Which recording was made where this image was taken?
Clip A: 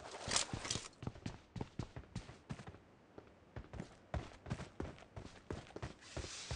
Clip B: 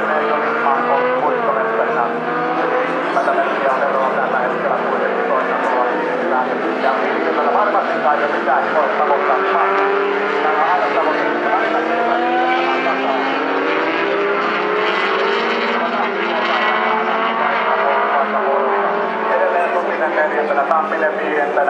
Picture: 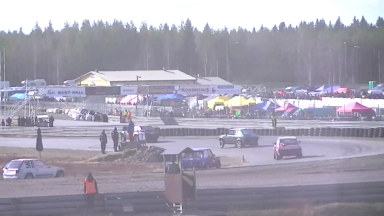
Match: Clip B